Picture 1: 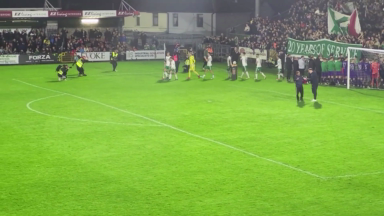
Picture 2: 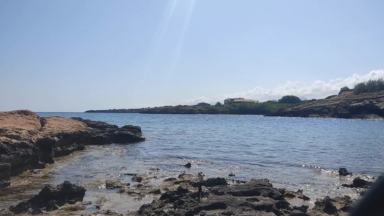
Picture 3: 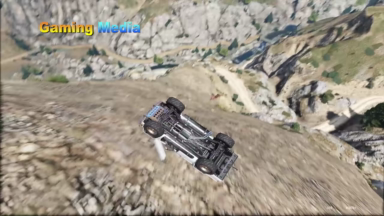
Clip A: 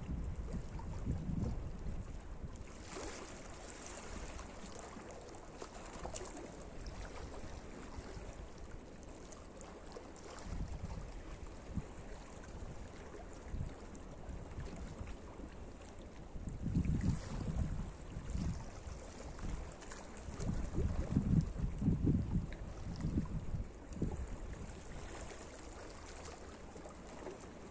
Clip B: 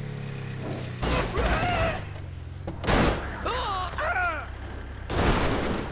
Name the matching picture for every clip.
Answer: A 2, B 3